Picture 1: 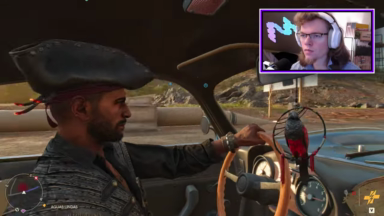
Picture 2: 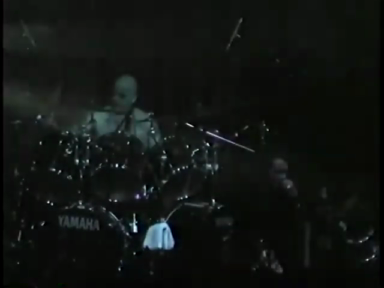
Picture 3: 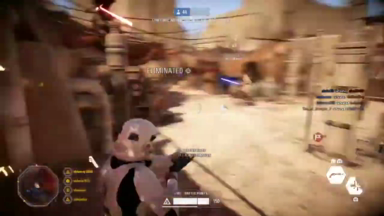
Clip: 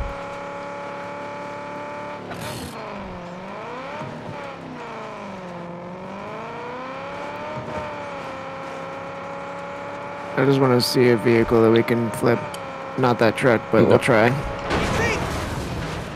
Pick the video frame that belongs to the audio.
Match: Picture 1